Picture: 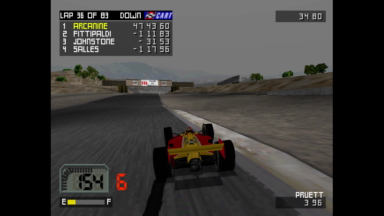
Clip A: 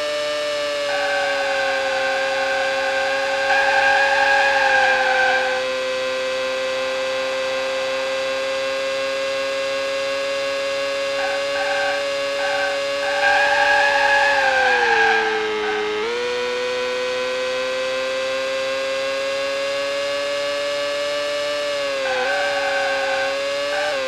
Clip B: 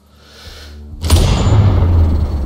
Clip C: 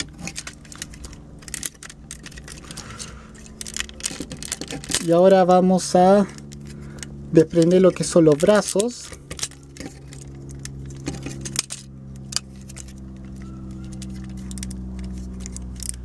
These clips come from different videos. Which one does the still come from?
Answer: A